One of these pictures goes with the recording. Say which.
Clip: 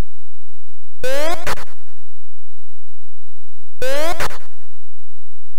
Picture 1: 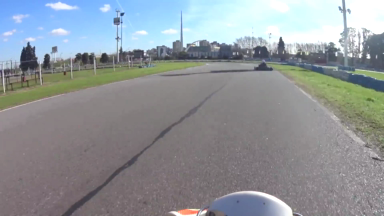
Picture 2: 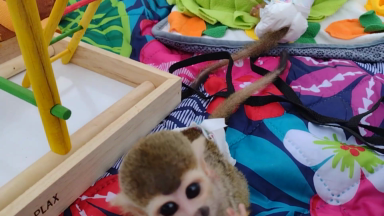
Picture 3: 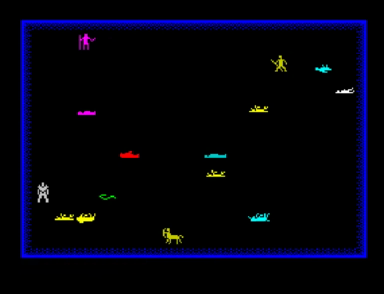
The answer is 3